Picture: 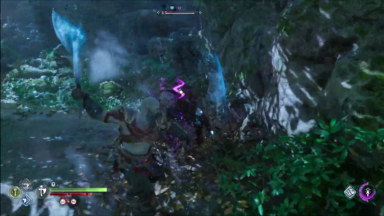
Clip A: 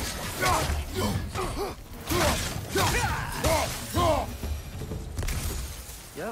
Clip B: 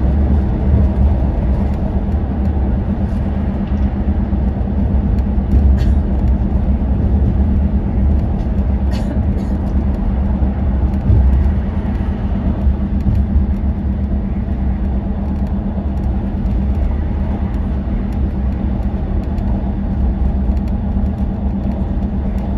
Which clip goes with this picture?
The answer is A